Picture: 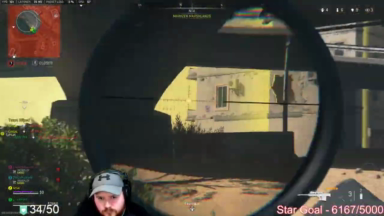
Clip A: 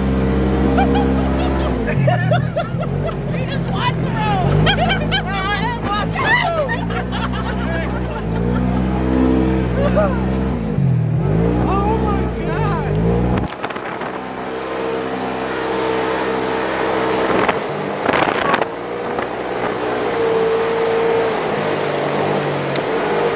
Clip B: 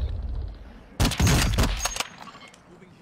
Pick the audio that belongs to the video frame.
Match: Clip B